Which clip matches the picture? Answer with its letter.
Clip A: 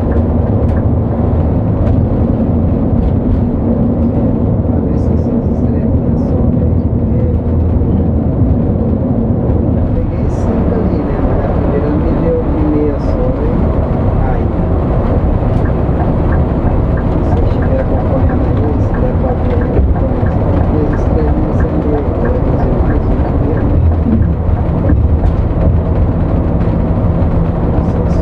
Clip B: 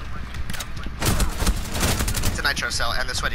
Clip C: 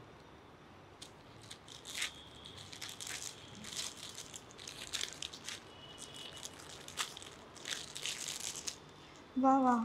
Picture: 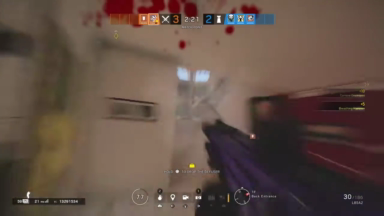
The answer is B